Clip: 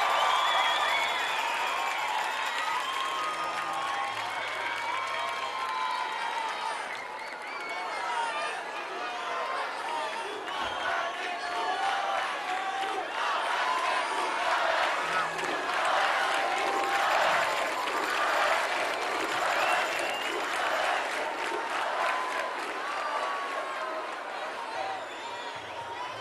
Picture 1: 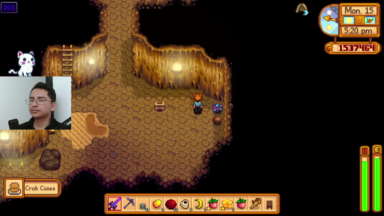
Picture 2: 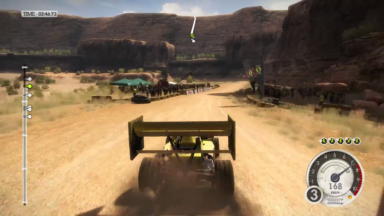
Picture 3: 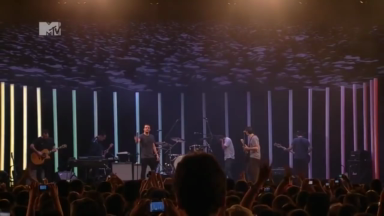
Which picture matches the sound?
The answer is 3